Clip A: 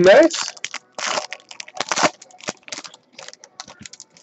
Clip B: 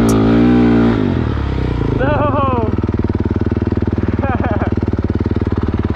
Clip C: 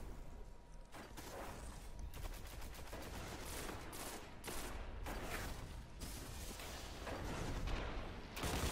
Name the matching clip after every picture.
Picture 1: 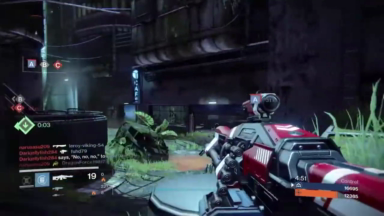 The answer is C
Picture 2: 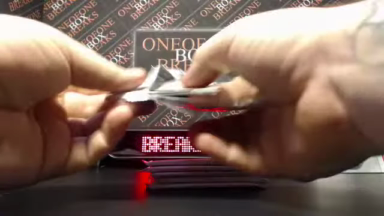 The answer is A